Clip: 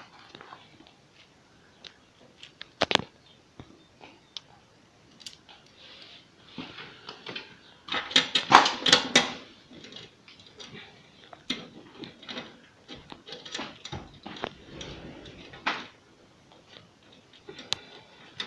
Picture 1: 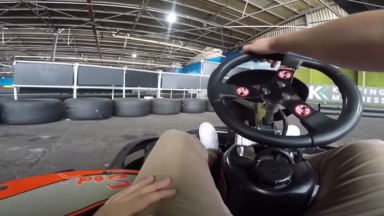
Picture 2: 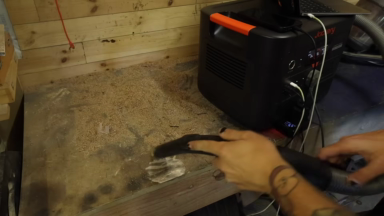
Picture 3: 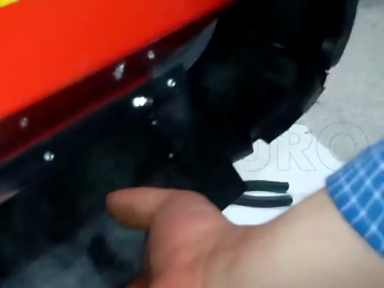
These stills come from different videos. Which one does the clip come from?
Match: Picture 3